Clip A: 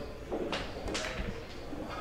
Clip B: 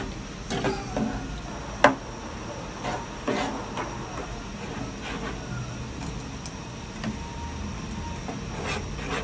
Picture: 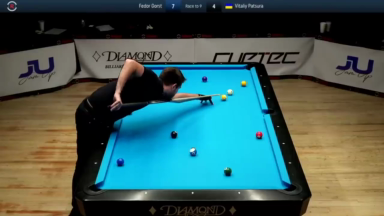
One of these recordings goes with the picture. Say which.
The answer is A